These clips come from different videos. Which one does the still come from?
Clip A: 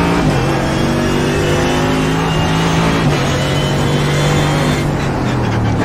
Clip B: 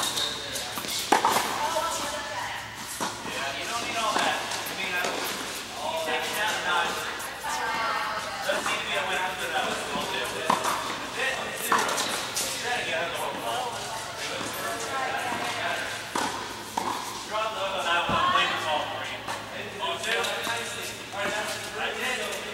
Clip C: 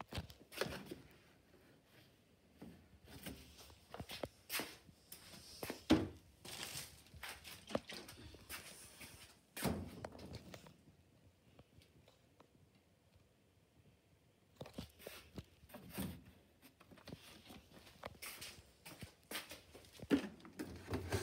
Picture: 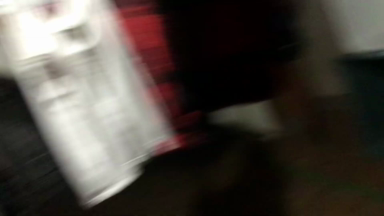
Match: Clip C